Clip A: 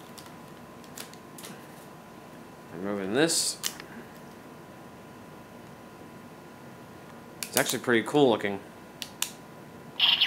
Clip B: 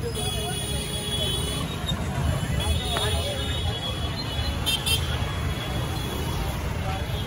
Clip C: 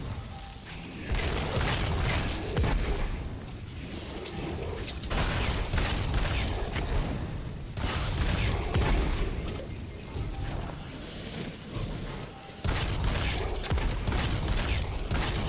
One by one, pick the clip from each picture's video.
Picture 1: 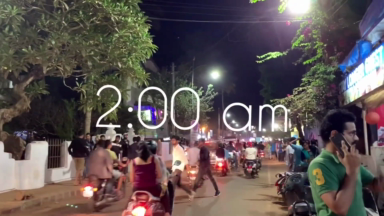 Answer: B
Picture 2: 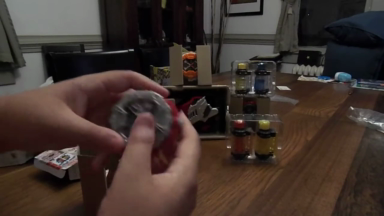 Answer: A